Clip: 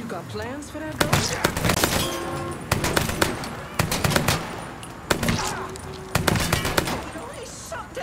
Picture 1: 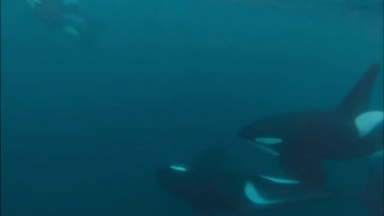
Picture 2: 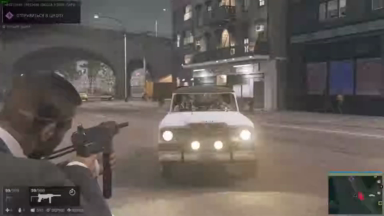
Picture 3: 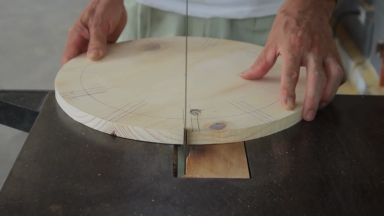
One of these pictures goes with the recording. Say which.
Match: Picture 2